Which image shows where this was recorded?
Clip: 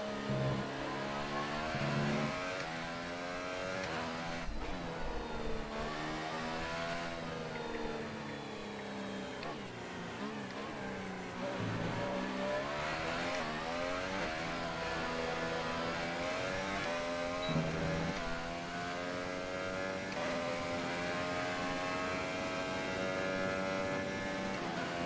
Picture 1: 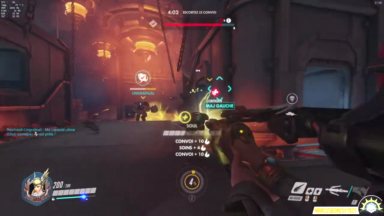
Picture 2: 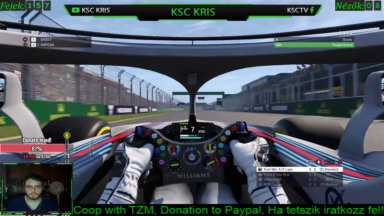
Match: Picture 2